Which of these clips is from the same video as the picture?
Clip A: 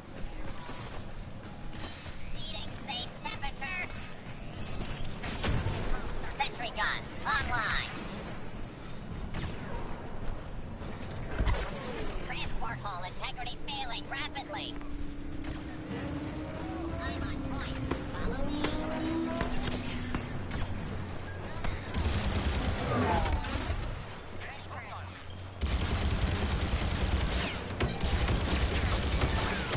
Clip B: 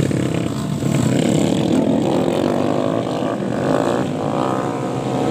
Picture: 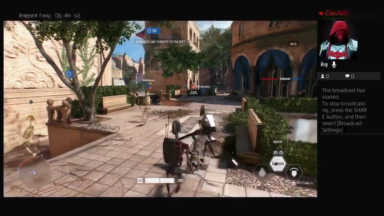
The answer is A